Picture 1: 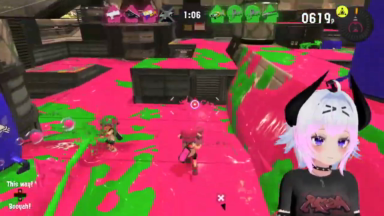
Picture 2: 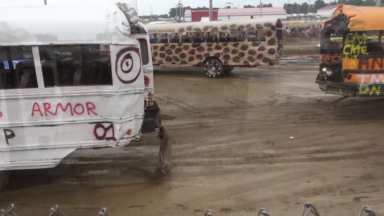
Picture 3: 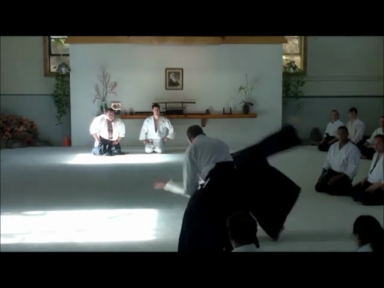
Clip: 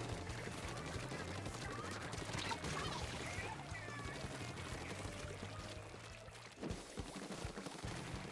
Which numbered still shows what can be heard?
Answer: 1